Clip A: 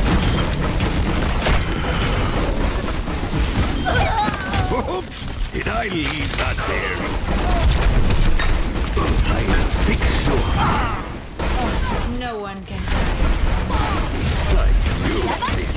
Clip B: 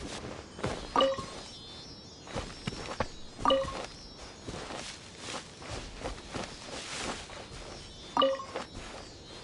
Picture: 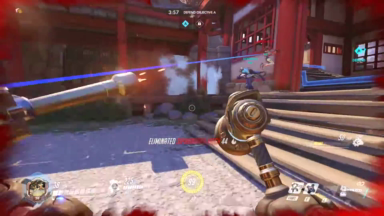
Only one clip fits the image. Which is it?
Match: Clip A